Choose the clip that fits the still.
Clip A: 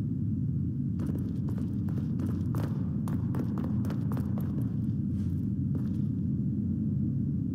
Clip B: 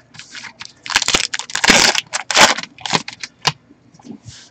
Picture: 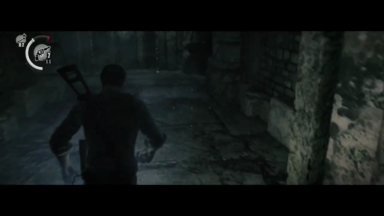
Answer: A